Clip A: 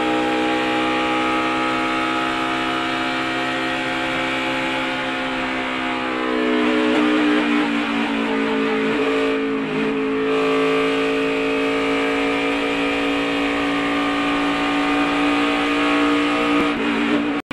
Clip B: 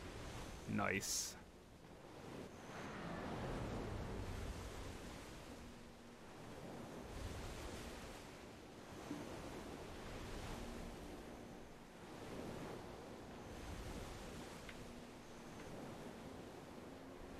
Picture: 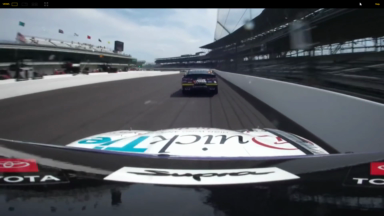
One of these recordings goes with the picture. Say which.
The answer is A